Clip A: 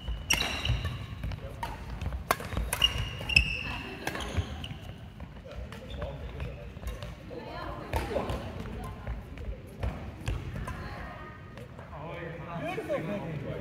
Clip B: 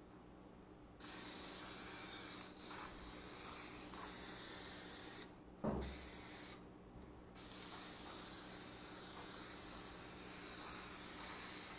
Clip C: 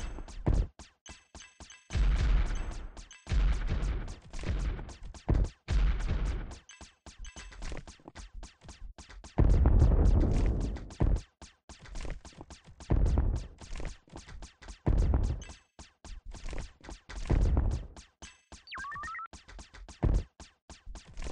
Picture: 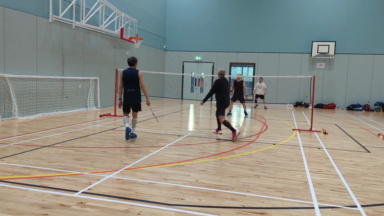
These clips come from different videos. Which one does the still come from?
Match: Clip A